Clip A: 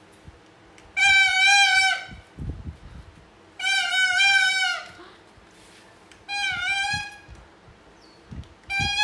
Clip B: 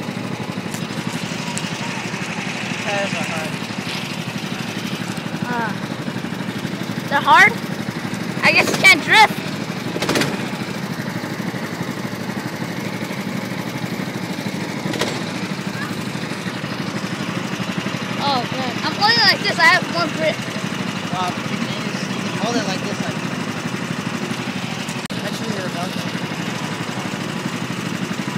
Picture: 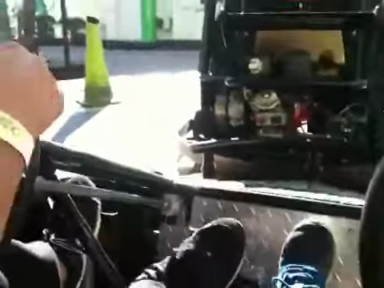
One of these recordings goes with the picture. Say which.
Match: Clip B